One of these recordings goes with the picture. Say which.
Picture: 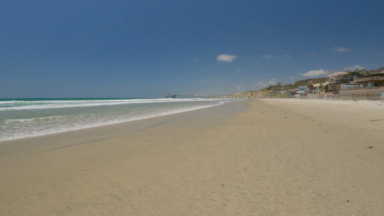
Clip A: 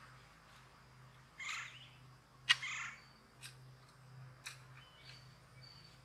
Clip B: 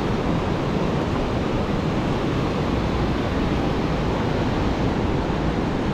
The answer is B